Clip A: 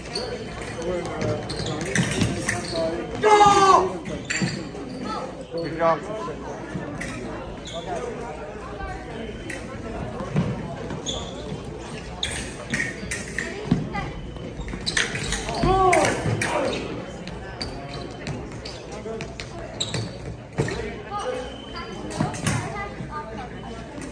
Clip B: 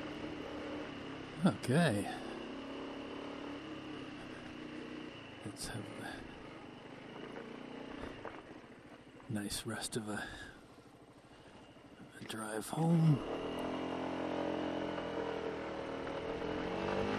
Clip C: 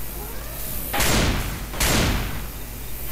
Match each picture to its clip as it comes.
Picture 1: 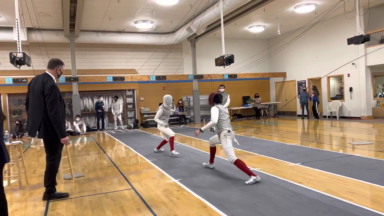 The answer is A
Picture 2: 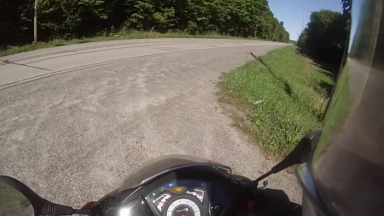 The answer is B